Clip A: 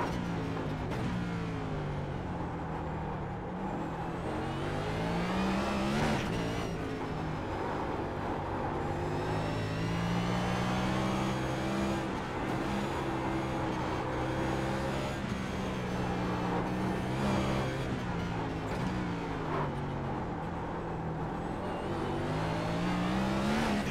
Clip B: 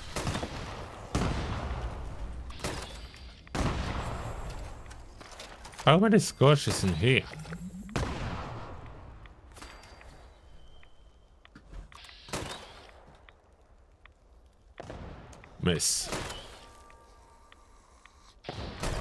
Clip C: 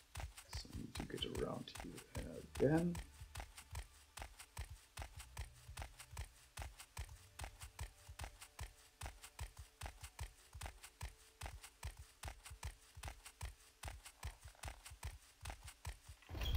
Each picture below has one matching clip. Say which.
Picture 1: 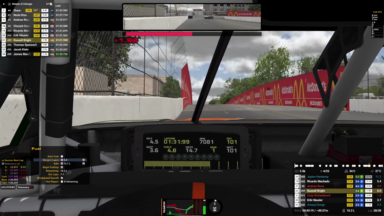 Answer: A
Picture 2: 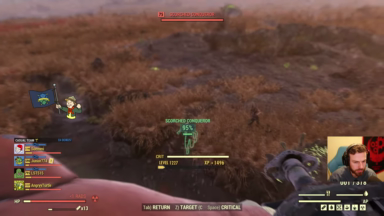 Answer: B